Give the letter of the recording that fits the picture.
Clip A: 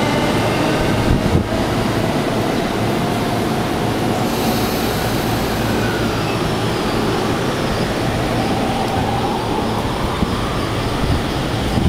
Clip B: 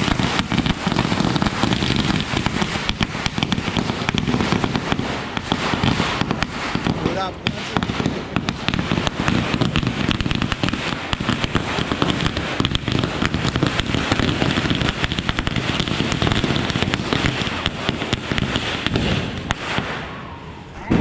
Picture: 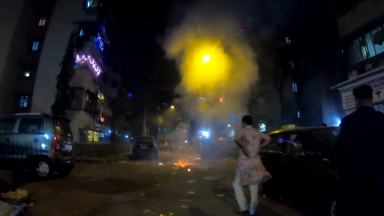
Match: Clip B